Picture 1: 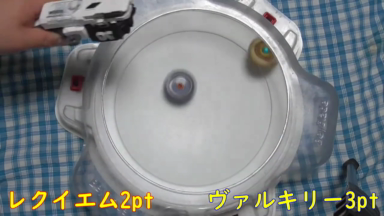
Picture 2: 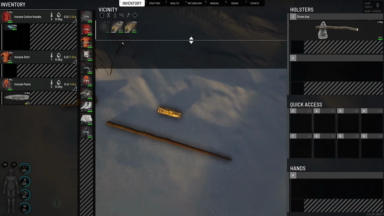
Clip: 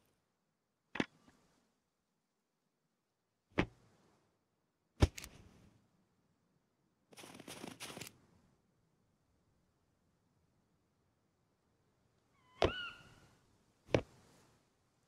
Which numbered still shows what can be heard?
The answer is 2